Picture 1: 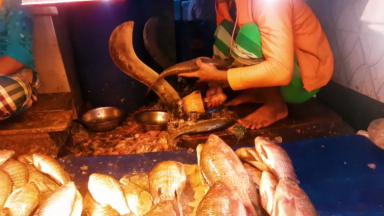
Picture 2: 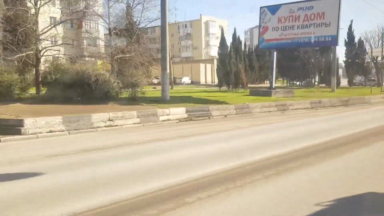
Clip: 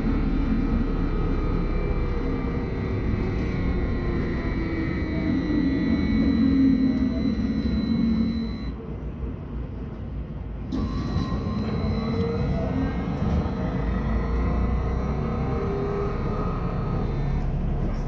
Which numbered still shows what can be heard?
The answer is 2